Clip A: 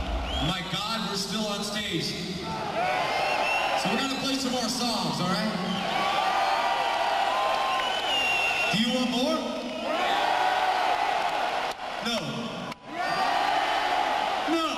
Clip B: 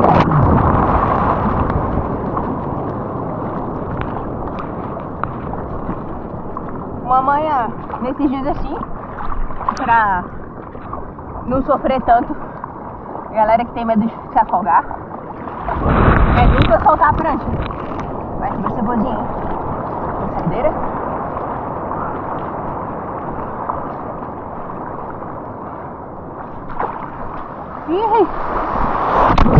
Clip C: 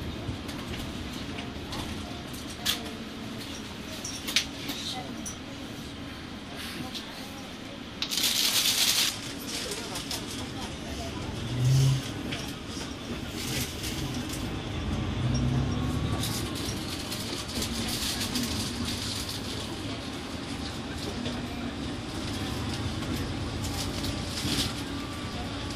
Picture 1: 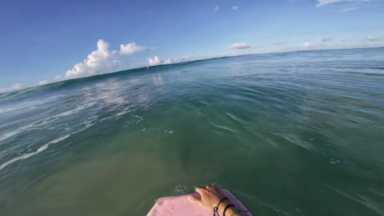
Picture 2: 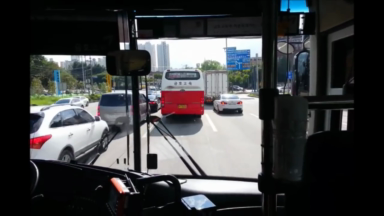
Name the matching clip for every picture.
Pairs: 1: B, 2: C